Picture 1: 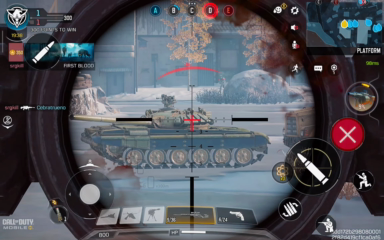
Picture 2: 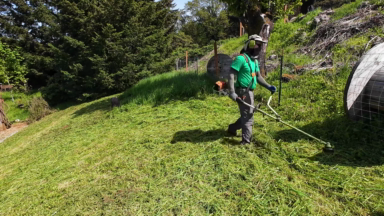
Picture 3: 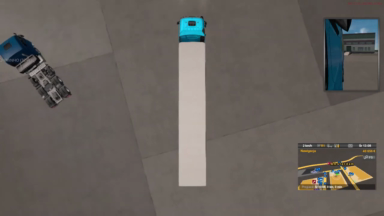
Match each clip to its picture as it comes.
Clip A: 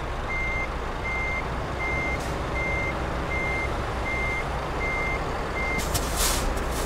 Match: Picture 3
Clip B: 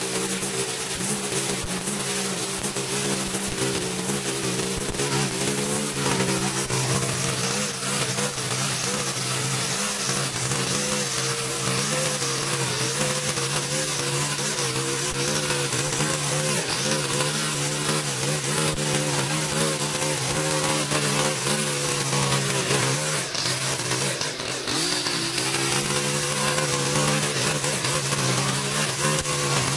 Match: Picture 2